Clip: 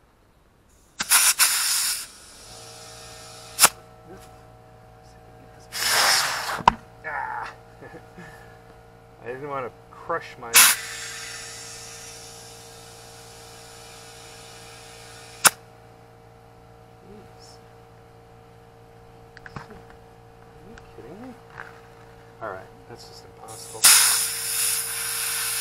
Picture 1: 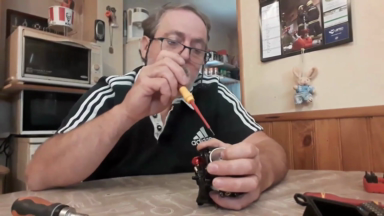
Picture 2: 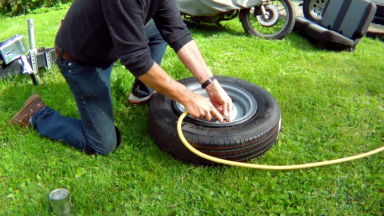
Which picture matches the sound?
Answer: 2